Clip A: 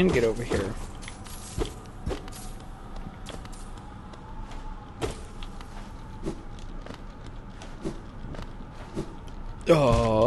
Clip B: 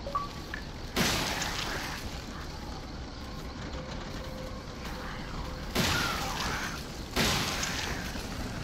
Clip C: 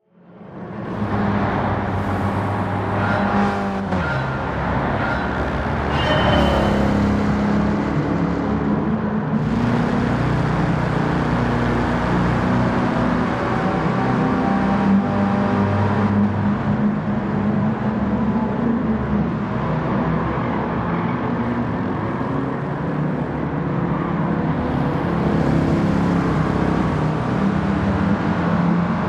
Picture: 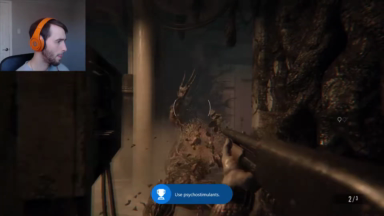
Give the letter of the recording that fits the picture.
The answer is B